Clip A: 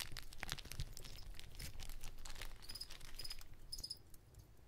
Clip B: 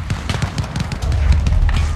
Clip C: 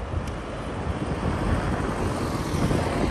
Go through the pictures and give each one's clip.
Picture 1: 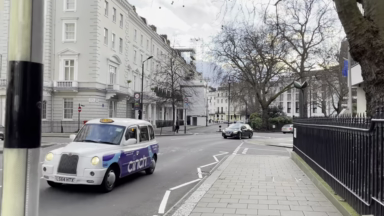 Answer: C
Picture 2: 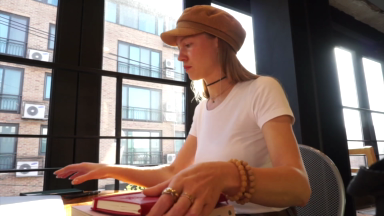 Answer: A